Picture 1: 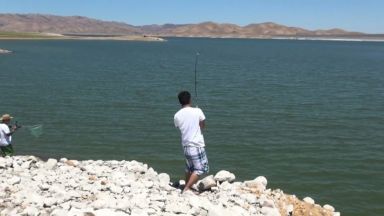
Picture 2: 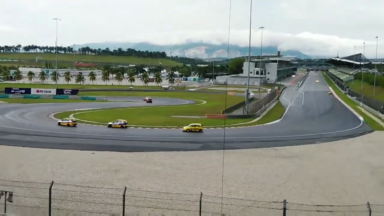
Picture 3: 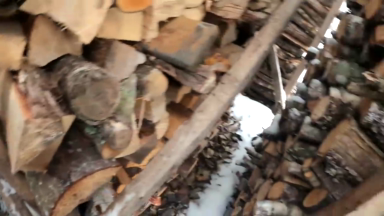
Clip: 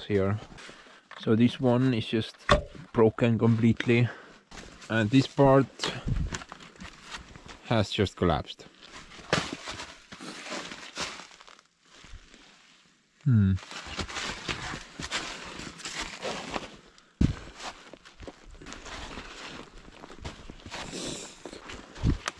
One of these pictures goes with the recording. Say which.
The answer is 3